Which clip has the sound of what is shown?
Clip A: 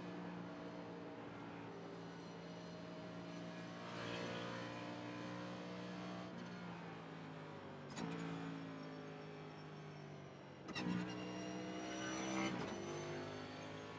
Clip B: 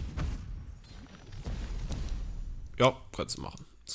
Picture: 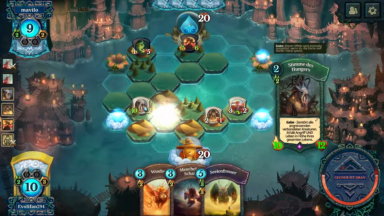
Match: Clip B